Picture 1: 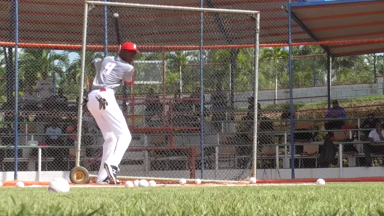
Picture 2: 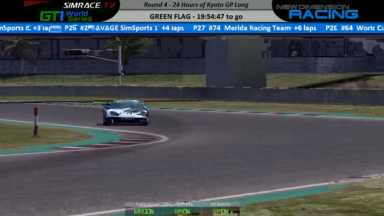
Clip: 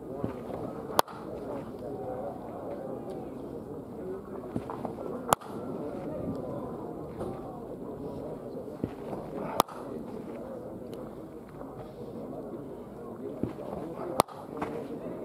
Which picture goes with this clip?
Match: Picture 1